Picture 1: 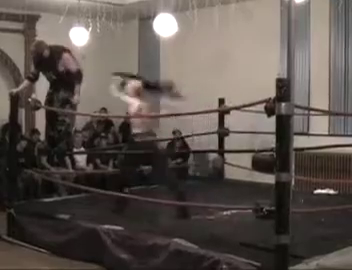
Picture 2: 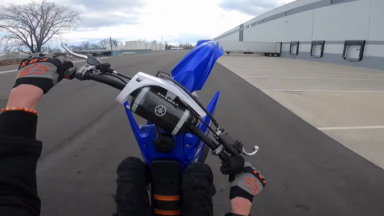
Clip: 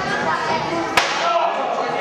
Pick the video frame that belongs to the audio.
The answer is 1